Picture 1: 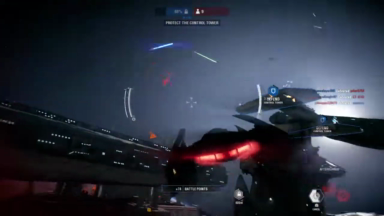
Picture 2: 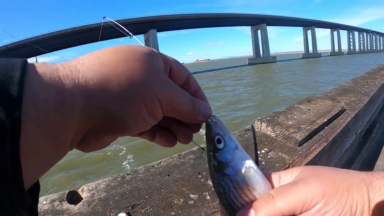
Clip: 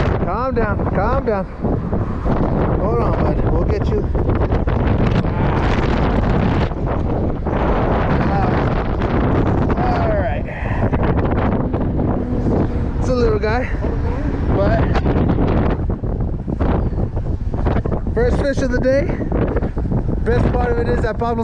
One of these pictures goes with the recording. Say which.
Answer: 2